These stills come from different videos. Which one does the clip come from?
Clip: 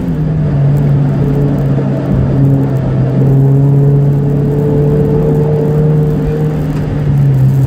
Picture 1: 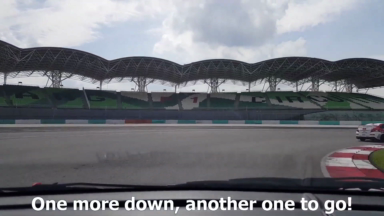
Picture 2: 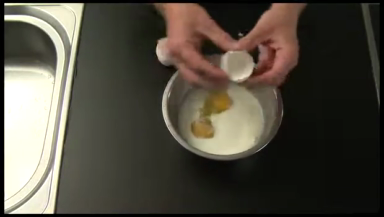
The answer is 1